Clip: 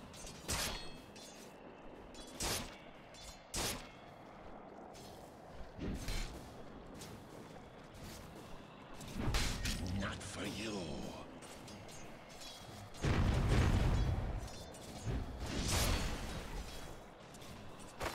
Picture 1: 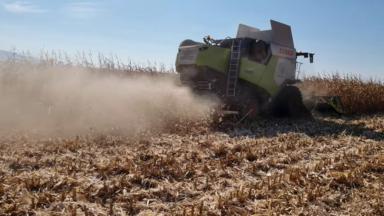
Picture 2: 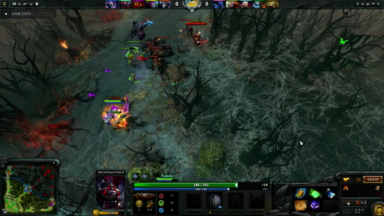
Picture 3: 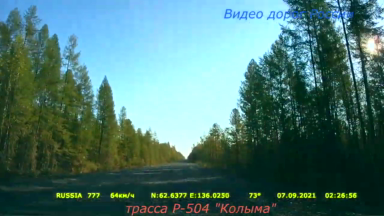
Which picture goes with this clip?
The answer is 2